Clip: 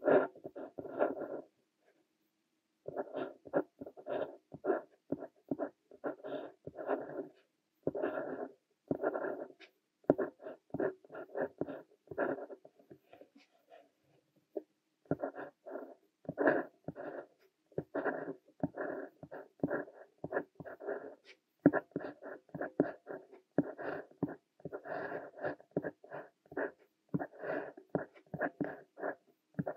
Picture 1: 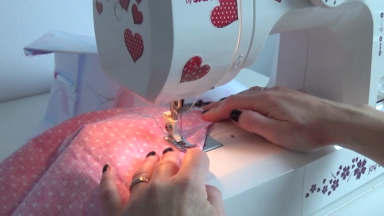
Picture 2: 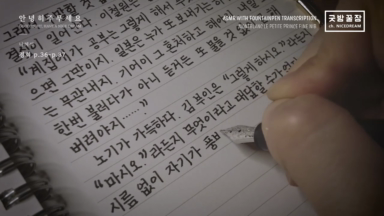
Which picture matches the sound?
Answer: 2